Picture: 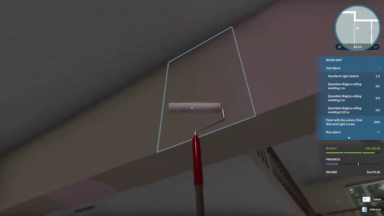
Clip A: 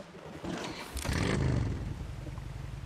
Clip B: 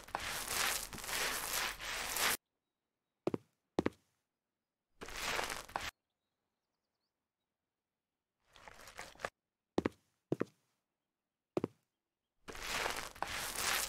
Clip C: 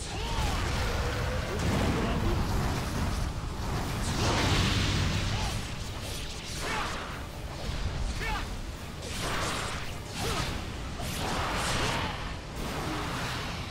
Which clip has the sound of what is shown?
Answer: B